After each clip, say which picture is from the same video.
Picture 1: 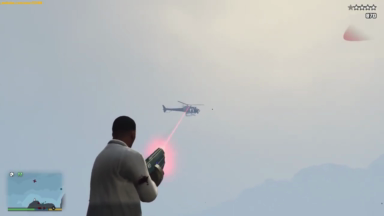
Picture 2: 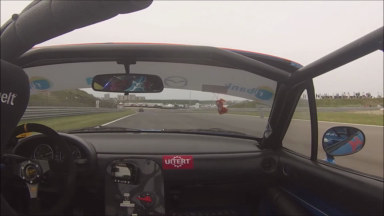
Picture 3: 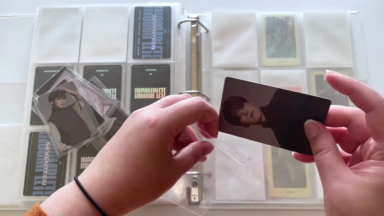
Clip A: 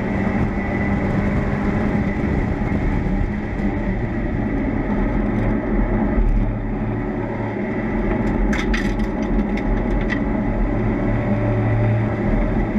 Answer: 2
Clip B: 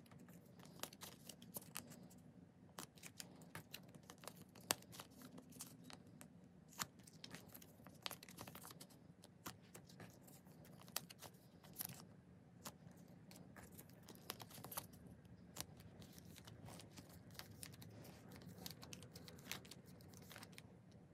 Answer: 3